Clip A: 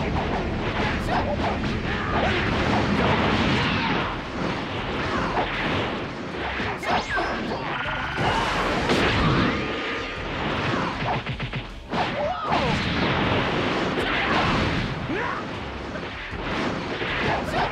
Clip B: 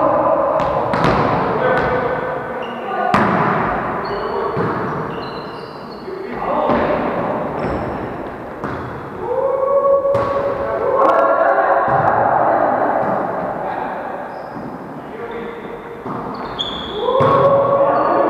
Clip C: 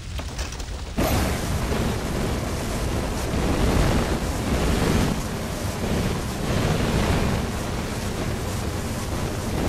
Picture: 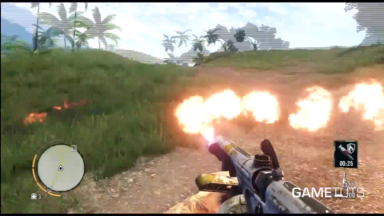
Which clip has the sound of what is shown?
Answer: C